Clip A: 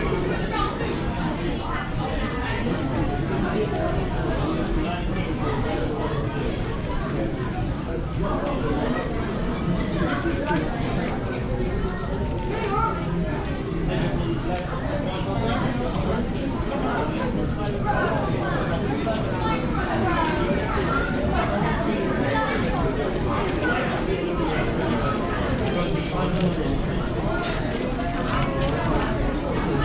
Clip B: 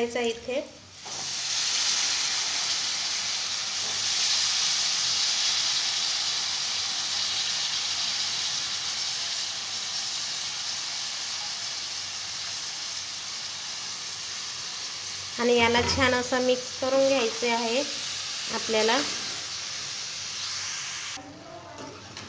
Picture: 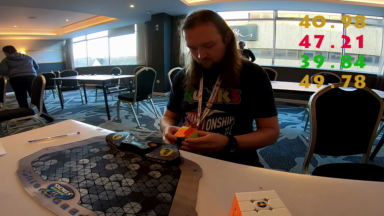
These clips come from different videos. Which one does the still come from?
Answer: A